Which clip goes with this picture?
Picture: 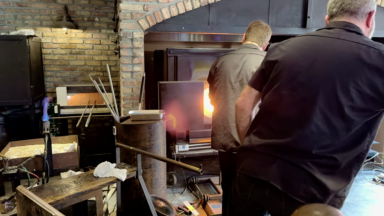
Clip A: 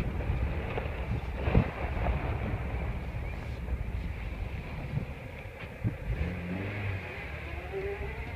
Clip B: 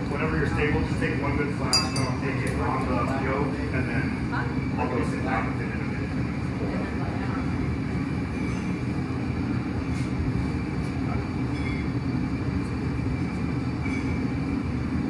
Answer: B